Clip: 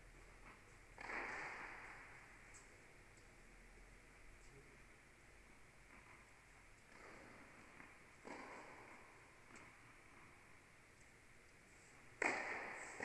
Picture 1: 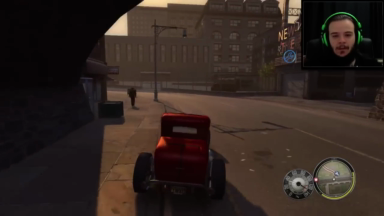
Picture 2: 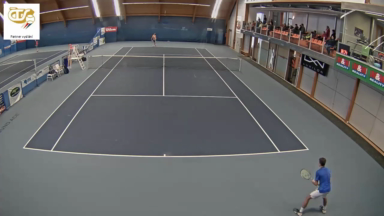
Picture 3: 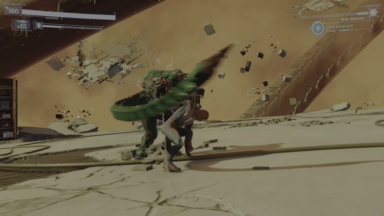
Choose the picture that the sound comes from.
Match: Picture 2